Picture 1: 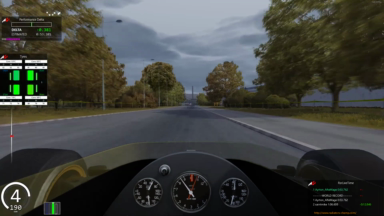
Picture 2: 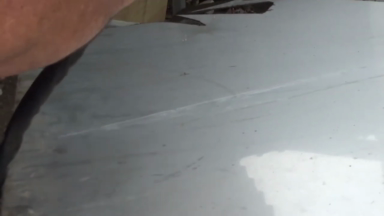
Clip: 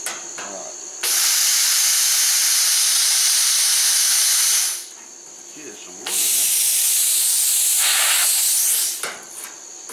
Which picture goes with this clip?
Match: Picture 2